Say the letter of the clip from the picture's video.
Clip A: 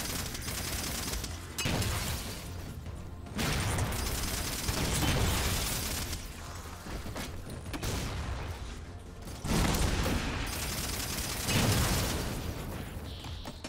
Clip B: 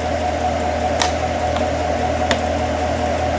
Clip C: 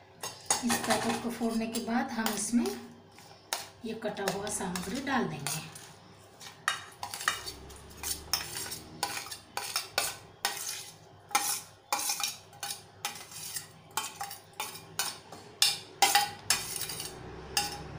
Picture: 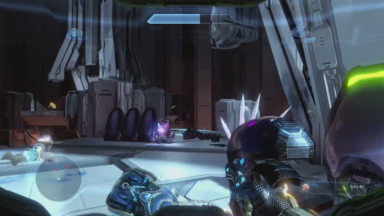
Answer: A